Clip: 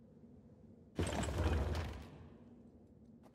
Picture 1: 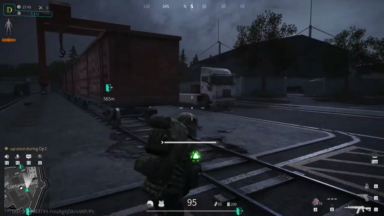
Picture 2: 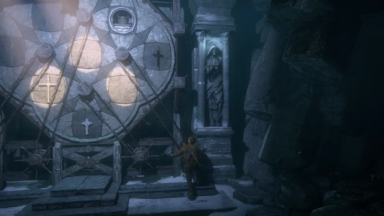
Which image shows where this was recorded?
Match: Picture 2